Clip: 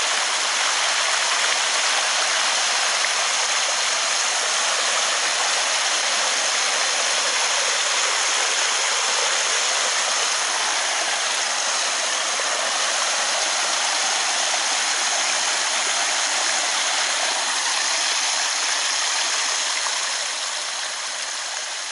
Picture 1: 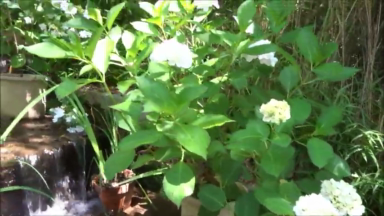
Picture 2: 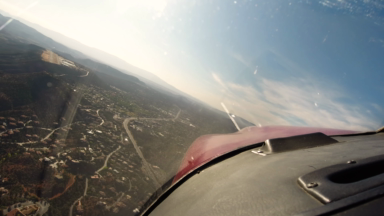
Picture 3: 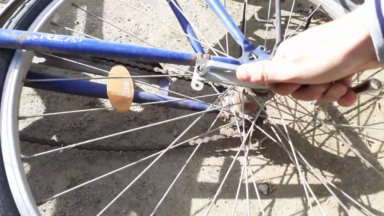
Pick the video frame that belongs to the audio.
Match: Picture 1